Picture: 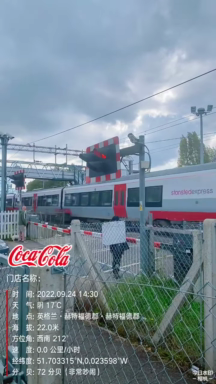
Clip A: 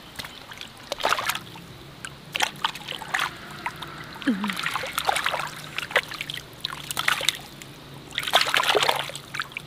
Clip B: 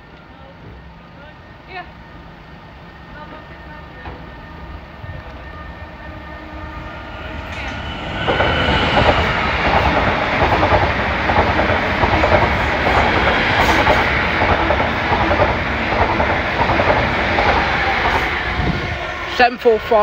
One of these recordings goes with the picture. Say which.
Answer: B